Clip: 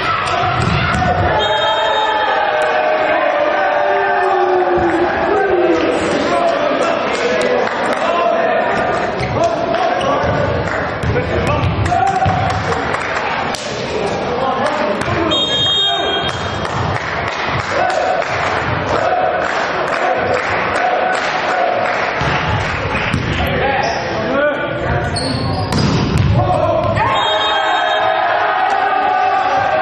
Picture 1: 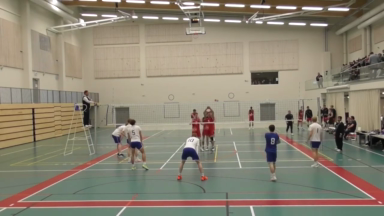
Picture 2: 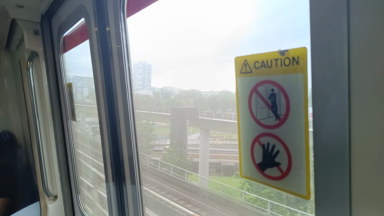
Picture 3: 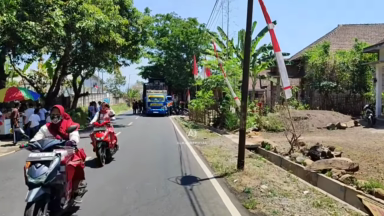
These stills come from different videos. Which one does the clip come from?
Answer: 1